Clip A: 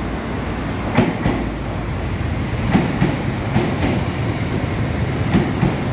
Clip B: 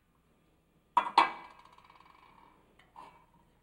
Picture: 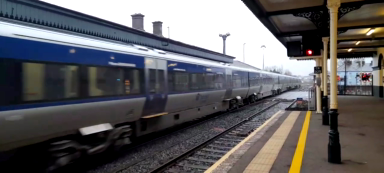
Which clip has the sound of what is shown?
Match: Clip A